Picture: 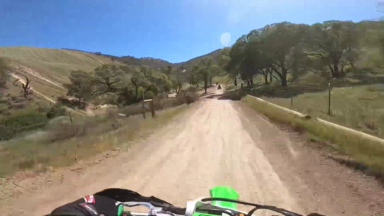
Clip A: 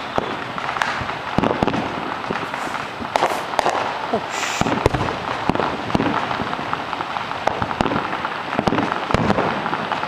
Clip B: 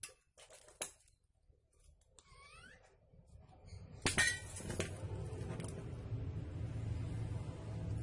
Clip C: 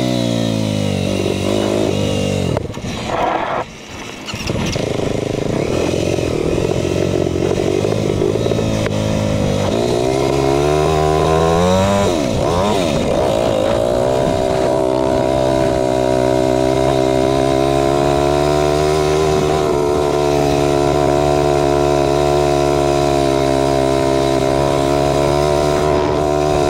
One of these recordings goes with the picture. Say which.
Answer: C